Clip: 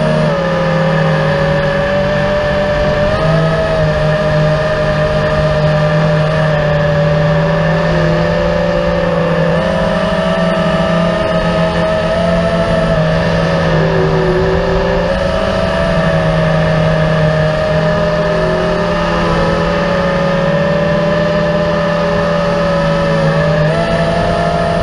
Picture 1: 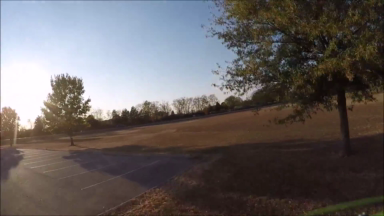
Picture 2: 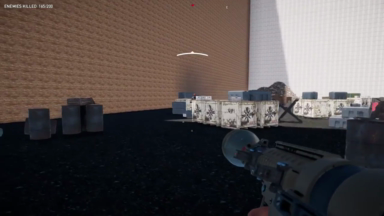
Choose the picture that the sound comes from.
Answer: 1